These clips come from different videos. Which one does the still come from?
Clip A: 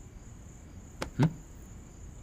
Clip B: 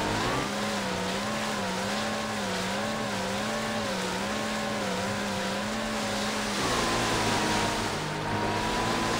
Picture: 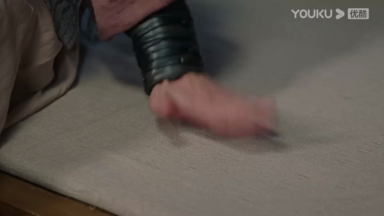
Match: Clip A